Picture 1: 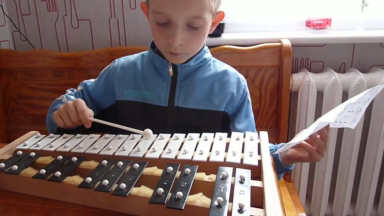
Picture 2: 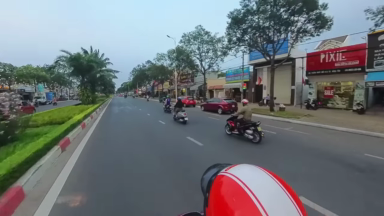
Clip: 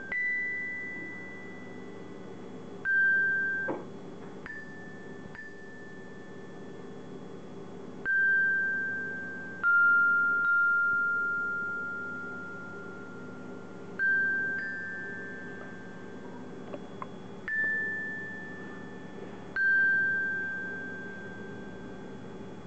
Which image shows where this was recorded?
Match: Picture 1